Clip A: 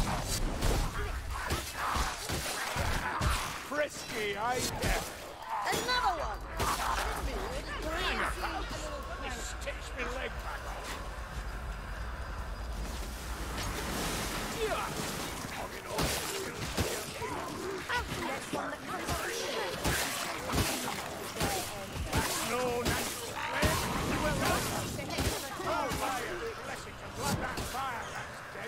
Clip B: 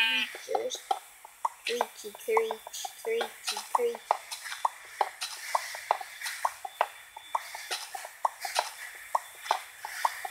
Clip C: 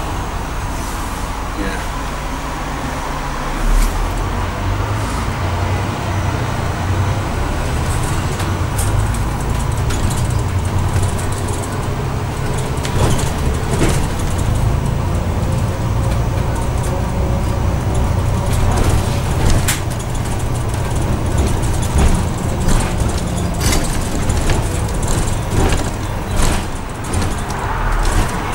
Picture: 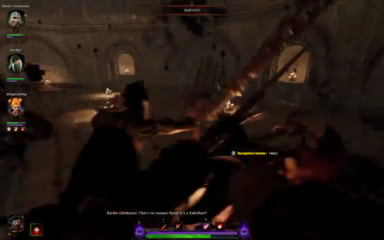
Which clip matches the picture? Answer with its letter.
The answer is A